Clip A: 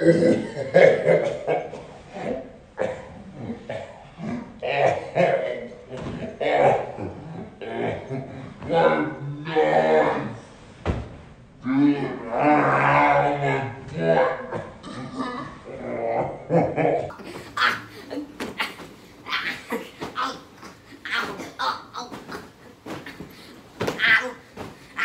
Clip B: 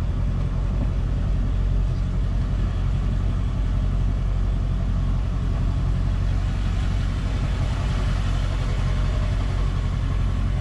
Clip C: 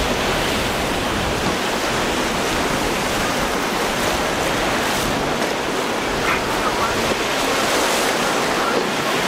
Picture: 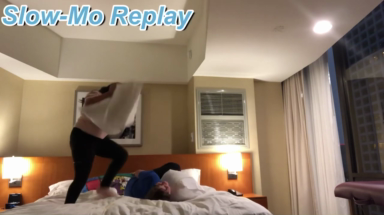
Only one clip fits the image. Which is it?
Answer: A